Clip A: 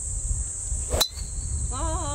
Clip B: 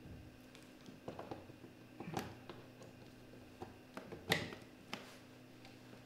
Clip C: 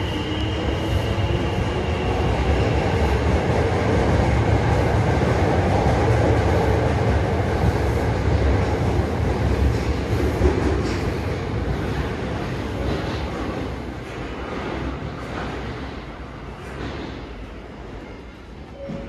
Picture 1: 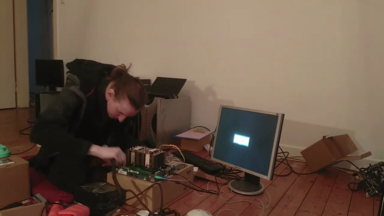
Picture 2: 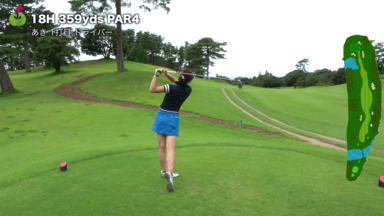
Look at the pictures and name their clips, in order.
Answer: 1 B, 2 A